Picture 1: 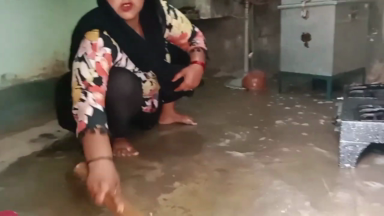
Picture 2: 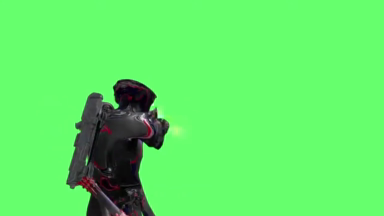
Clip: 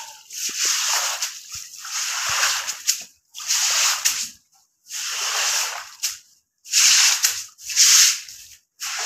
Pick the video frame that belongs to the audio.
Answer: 1